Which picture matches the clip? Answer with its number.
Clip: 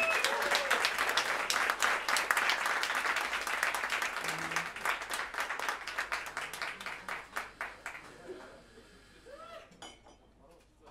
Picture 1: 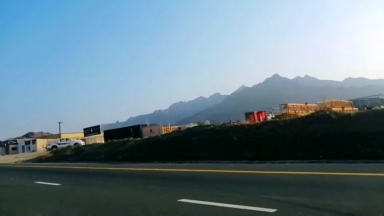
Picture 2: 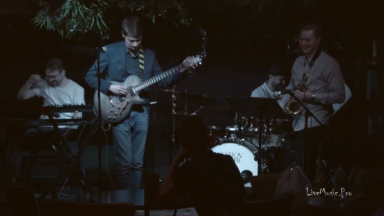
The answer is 2